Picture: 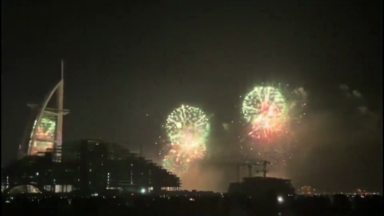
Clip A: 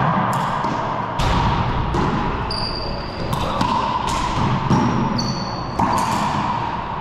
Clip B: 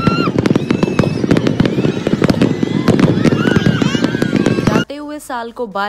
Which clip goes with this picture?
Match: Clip B